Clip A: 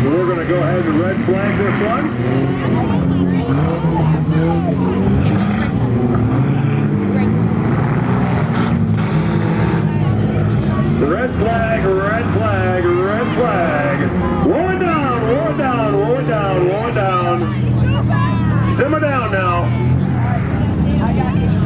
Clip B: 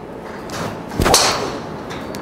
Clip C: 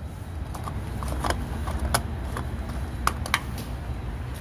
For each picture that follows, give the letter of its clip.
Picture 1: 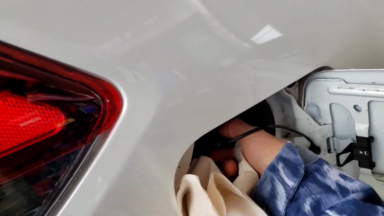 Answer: C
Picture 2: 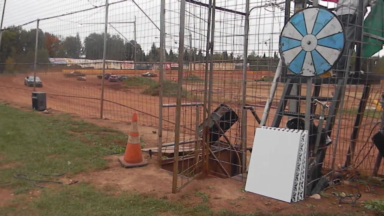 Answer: A